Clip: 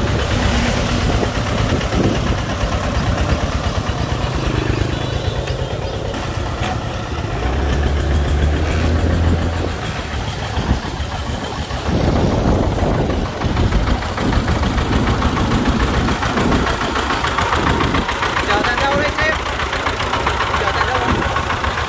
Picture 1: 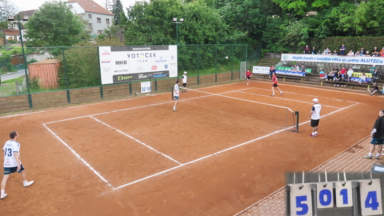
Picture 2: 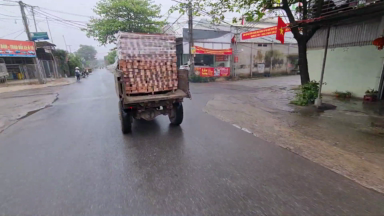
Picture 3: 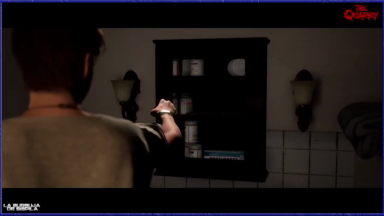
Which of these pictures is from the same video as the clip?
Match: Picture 2